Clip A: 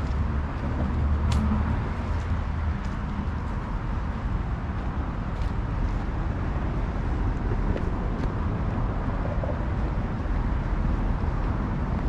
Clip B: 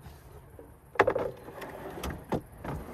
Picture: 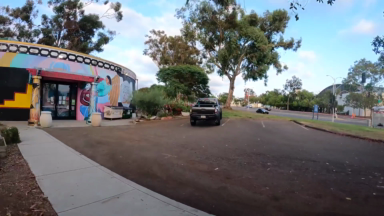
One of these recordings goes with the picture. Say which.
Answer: A